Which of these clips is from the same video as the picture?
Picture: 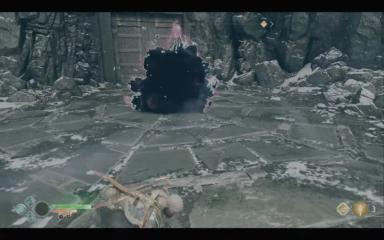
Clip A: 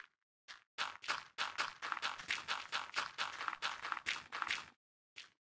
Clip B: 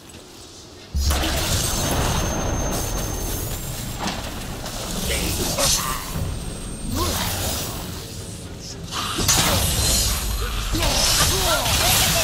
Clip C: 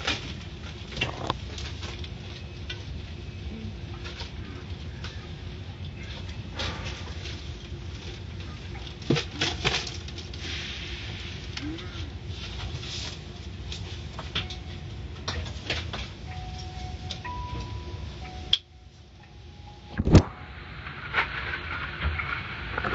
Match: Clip B